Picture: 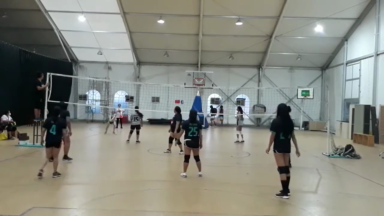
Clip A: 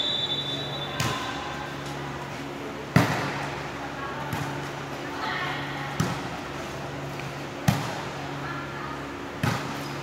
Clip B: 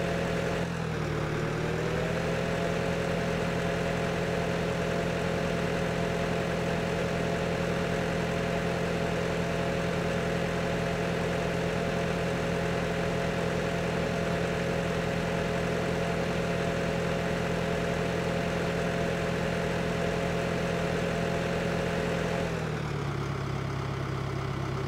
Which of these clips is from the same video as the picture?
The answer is A